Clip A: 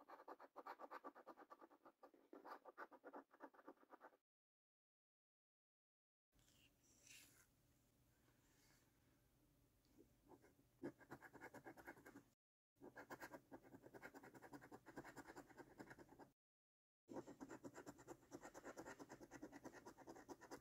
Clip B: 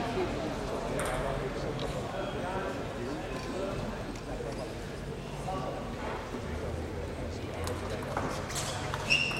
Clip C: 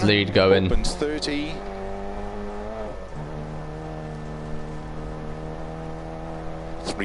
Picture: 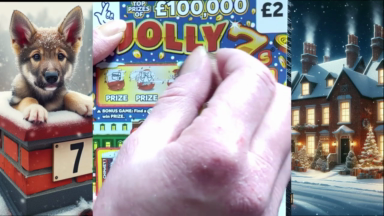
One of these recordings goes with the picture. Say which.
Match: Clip A